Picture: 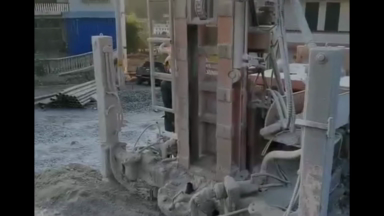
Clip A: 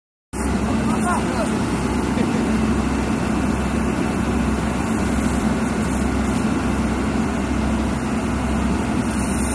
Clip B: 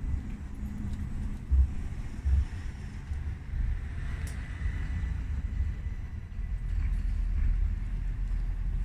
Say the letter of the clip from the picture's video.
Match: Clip A